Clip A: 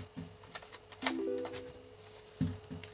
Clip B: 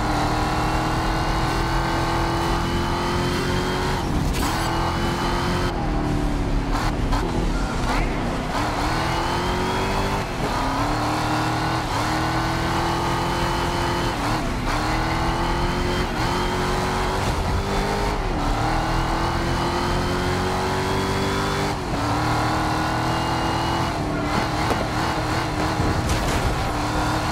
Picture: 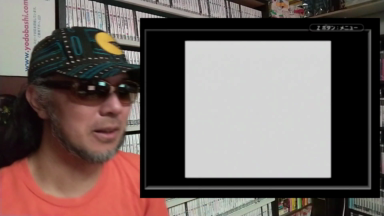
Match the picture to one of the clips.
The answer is A